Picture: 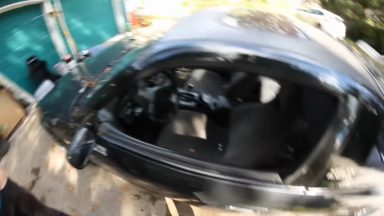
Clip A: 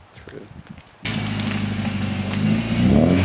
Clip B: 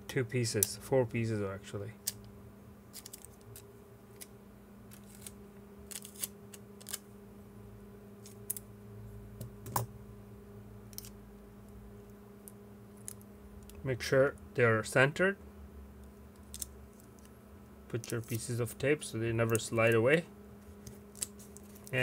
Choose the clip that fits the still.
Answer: A